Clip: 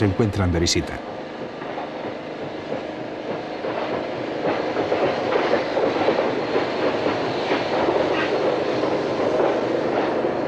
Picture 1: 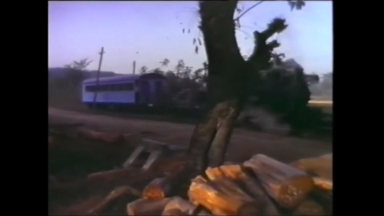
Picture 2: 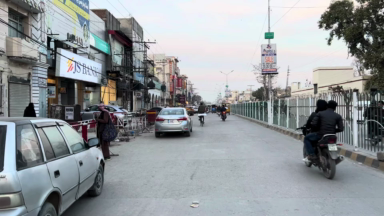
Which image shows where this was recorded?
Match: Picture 1